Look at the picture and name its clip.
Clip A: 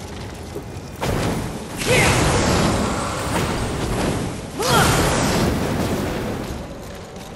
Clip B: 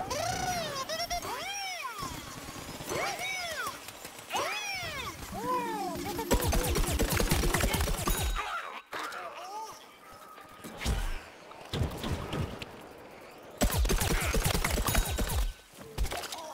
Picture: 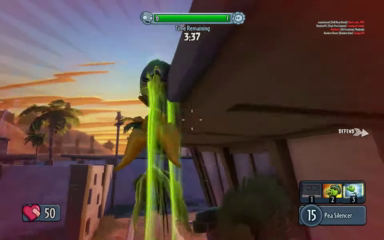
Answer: B